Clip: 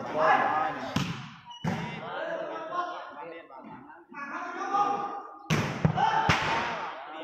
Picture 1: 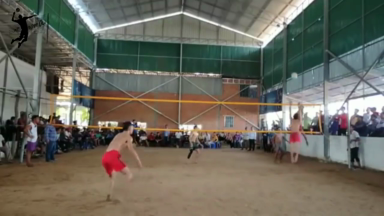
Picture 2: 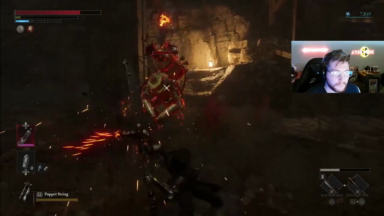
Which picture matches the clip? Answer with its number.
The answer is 1